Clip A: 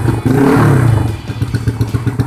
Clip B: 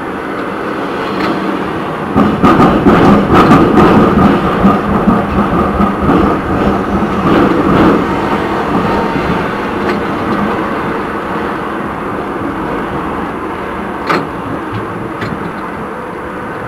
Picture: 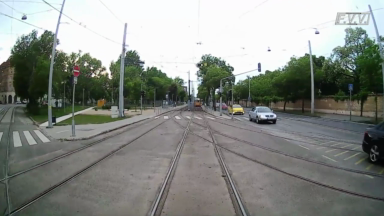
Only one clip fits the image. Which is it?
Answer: B